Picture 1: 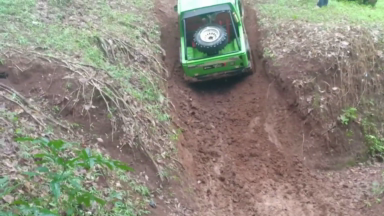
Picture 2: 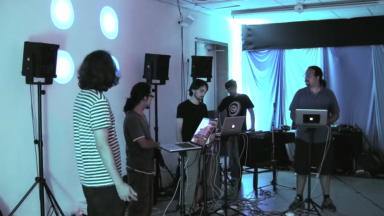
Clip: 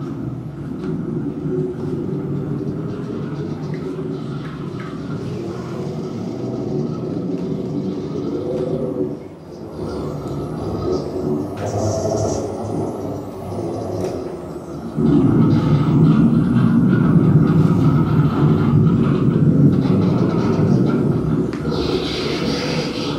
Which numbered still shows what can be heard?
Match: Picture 2